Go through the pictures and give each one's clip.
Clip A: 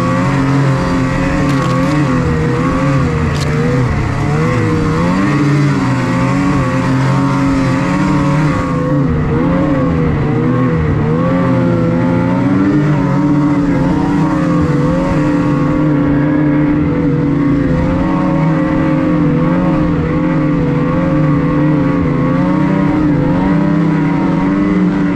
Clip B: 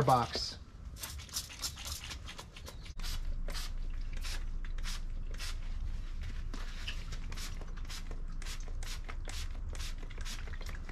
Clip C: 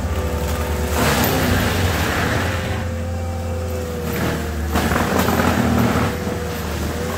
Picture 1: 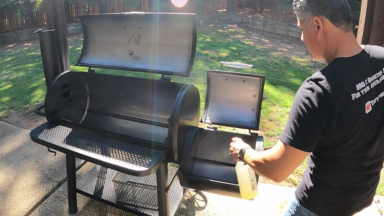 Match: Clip B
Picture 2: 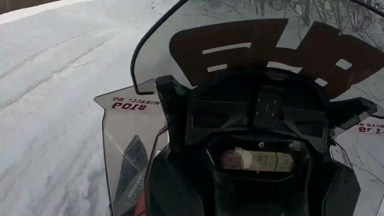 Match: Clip A